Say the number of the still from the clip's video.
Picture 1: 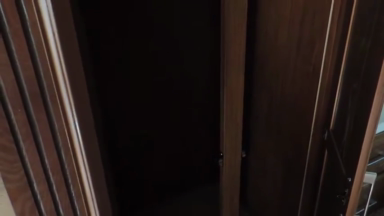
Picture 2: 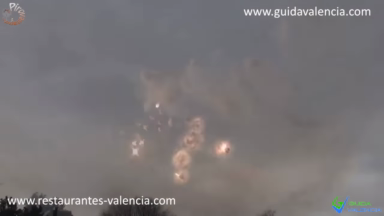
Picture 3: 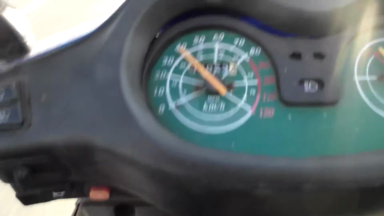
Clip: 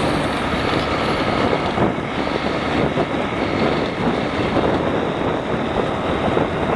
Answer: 3